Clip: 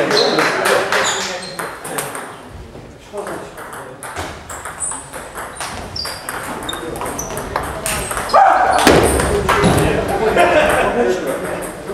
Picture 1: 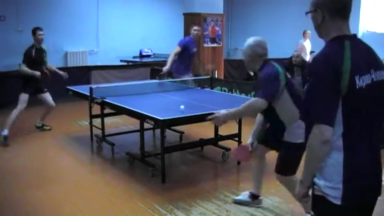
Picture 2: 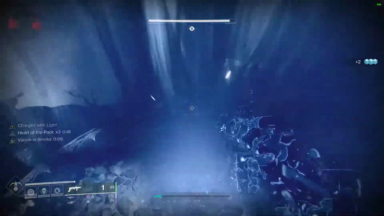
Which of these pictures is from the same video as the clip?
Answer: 1